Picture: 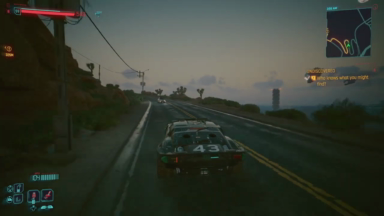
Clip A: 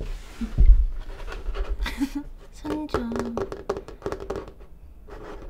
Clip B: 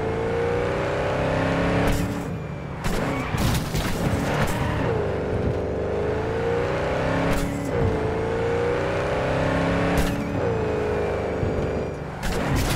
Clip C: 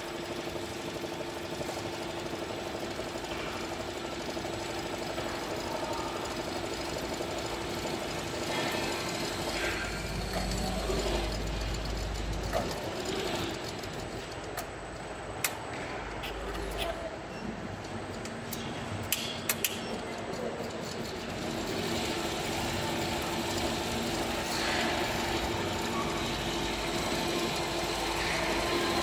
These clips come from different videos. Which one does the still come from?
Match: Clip B